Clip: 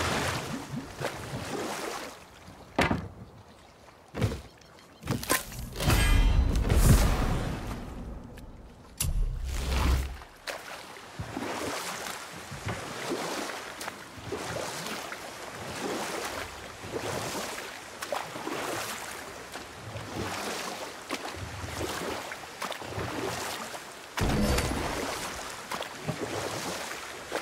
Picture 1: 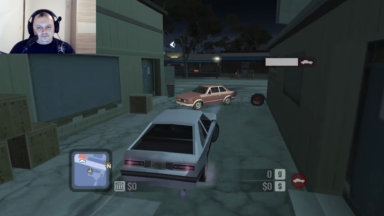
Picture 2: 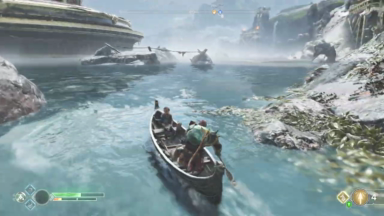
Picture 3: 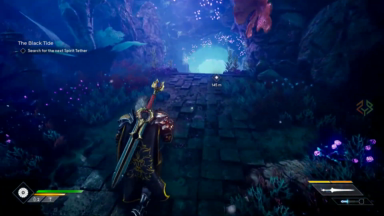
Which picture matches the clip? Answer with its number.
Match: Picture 2